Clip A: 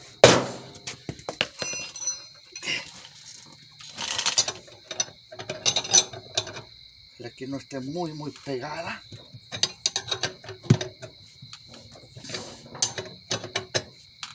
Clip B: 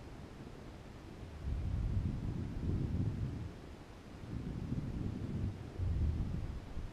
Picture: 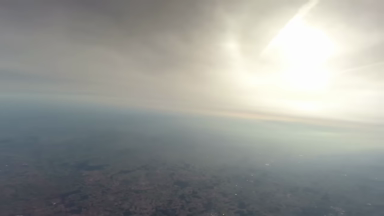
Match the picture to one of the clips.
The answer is B